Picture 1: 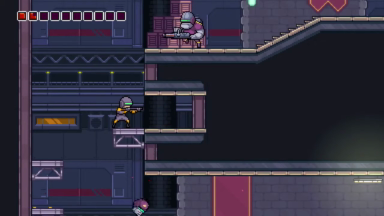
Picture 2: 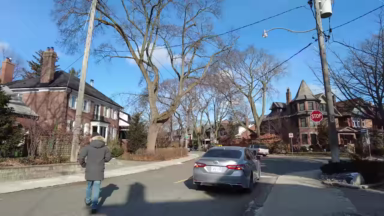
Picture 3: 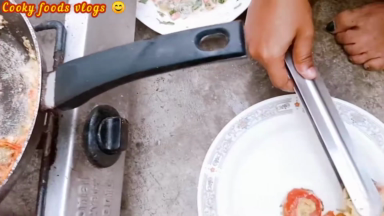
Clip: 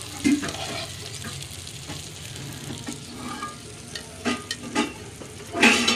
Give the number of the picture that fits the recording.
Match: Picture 3